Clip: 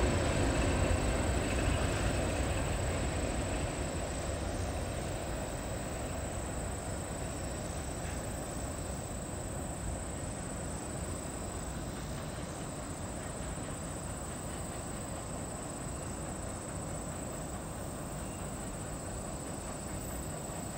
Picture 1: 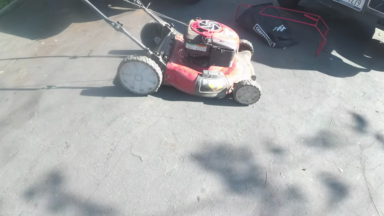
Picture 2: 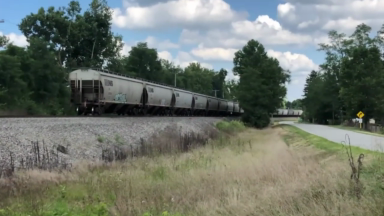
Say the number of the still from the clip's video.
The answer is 2